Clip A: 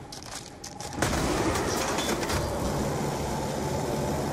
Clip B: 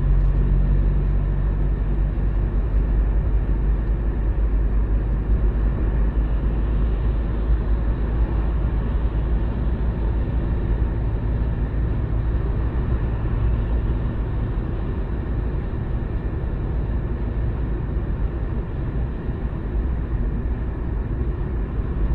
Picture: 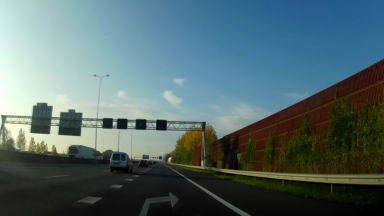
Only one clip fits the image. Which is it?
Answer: B